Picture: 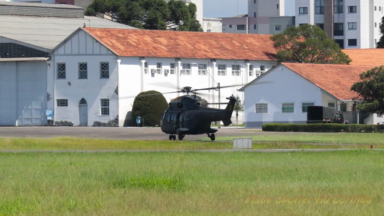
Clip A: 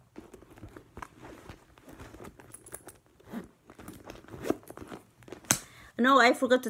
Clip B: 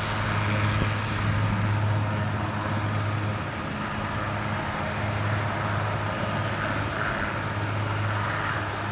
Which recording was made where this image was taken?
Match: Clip B